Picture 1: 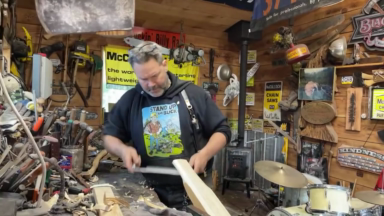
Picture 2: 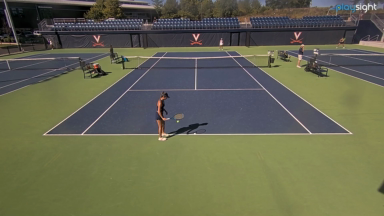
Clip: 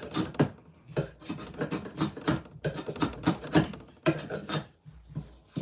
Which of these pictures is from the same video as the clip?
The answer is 1